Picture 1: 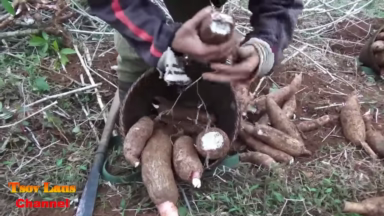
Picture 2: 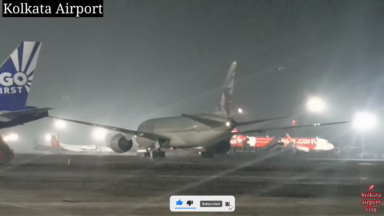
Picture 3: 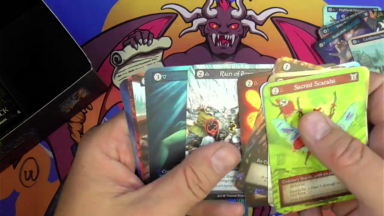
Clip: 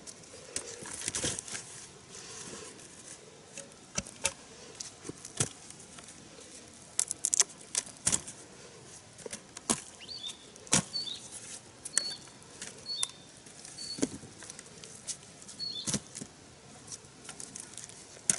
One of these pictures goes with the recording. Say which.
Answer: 1